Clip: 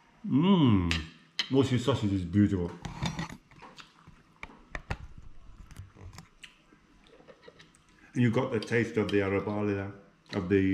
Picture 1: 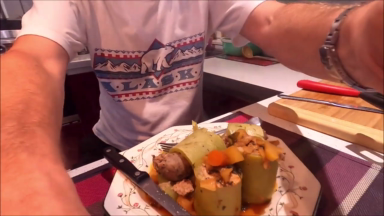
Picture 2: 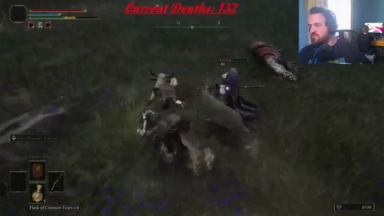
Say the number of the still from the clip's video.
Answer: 1